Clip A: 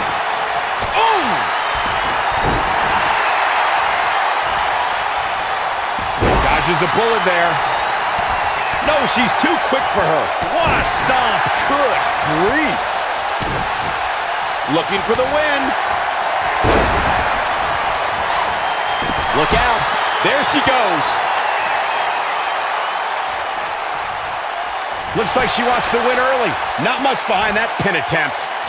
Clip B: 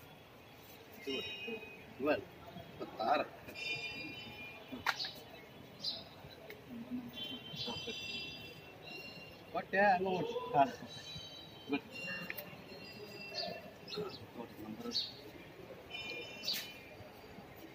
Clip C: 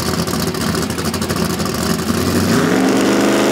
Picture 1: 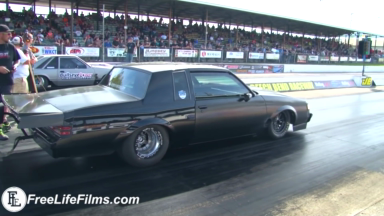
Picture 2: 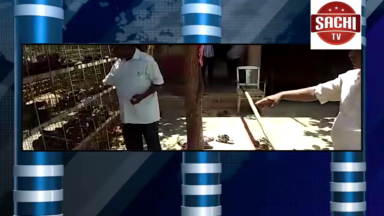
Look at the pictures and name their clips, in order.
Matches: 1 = C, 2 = B